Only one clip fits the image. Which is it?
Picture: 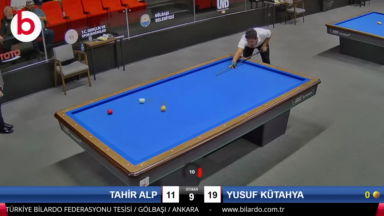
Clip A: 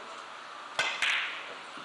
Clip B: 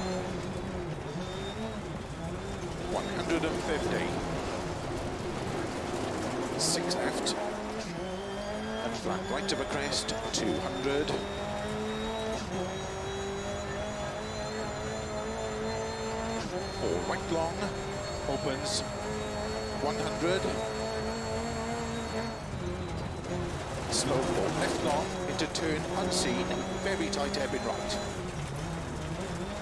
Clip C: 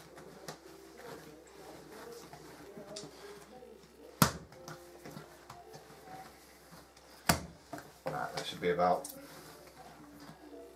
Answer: A